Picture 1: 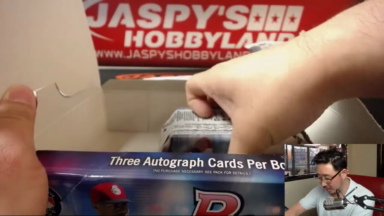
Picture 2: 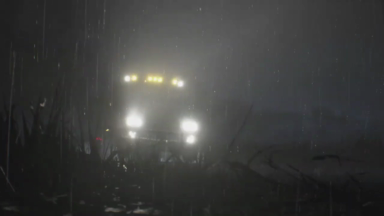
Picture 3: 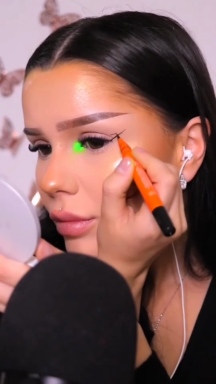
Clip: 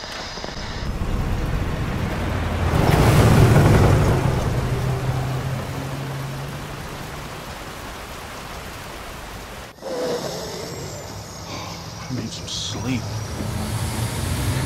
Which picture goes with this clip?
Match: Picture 2